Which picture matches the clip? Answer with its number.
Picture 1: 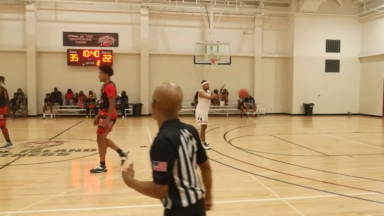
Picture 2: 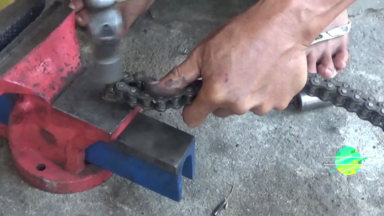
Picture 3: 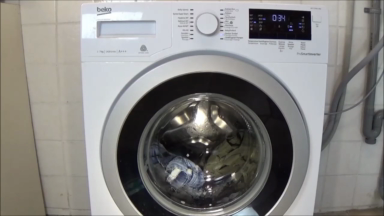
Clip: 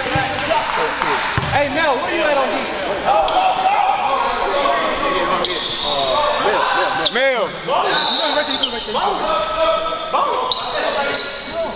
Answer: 1